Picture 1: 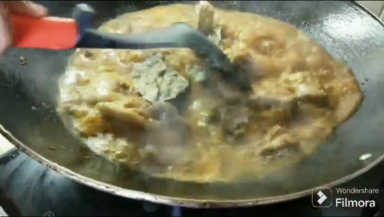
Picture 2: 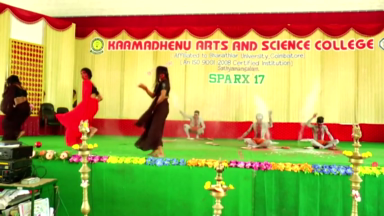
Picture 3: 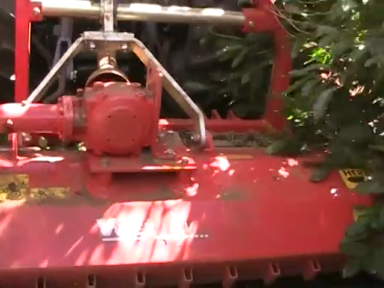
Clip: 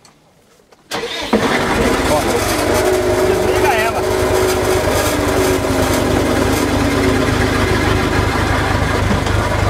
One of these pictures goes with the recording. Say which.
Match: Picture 3